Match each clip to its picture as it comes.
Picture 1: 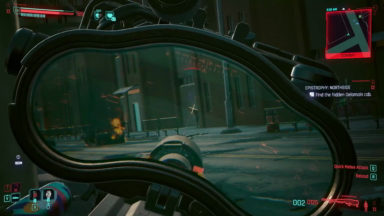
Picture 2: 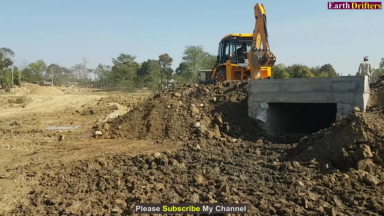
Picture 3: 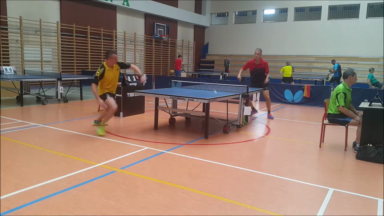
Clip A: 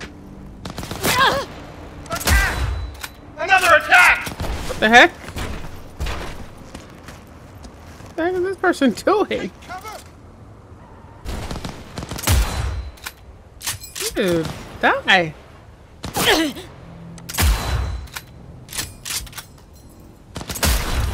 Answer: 1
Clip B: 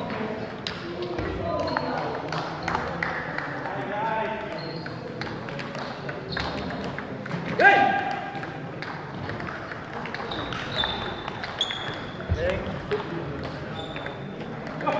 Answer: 3